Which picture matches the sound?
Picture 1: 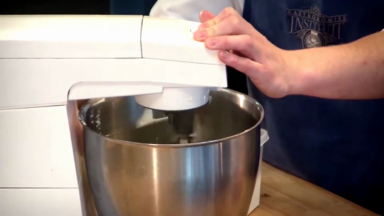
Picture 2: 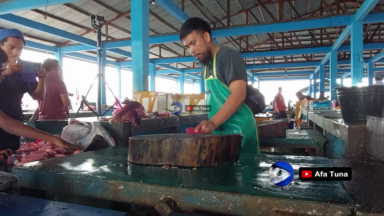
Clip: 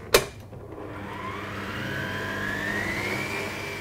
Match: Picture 1